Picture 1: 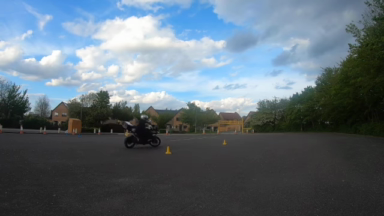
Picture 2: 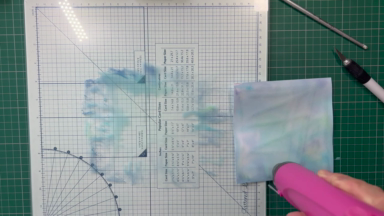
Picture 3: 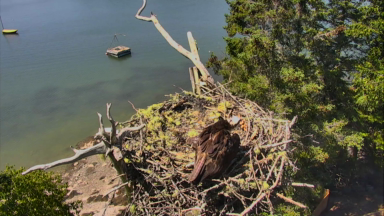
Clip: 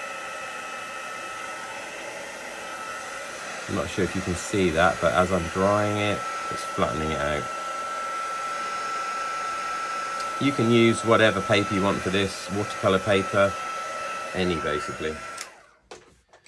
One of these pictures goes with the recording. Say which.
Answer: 2